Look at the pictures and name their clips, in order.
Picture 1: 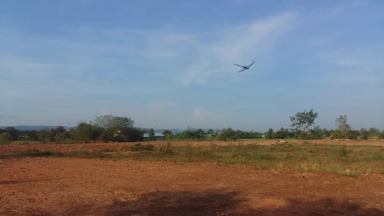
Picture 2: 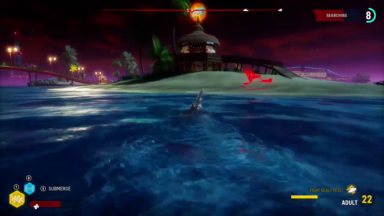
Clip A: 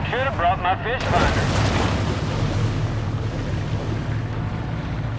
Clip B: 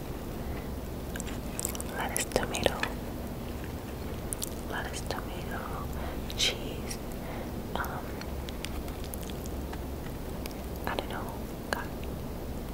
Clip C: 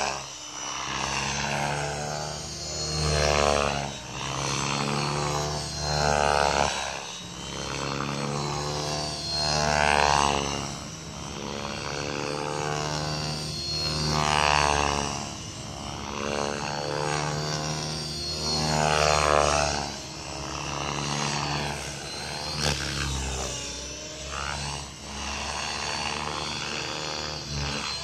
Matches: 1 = C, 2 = A